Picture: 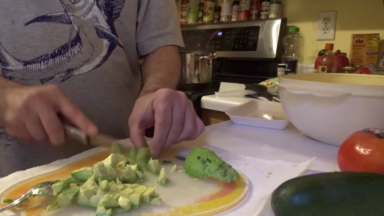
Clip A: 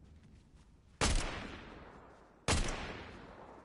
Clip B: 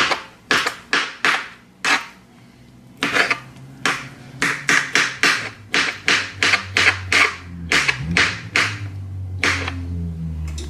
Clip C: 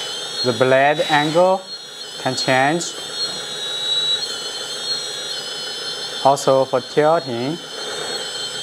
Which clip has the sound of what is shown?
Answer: B